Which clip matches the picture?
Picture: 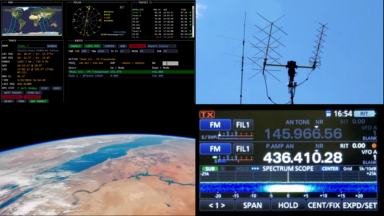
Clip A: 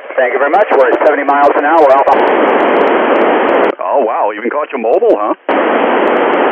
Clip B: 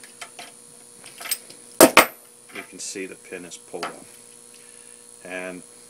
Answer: A